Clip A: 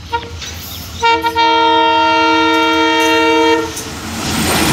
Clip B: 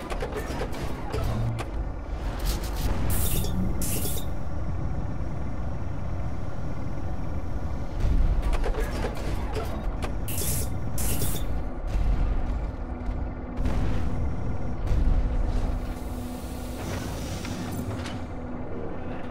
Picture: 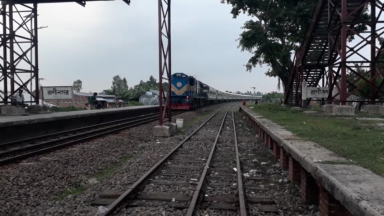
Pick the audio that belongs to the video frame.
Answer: A